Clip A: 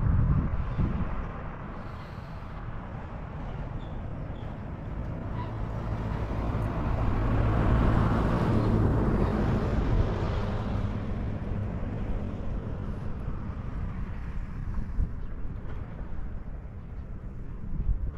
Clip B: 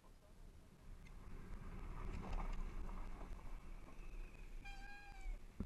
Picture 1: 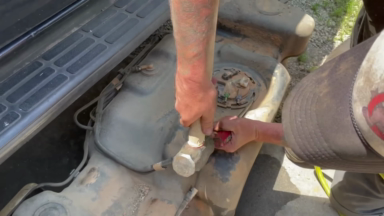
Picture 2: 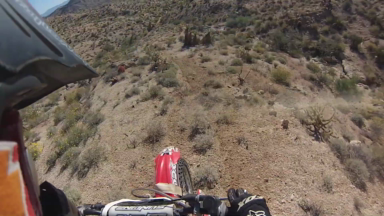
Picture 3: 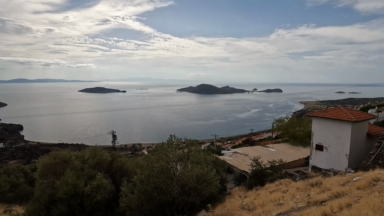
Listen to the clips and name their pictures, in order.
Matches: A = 3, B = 2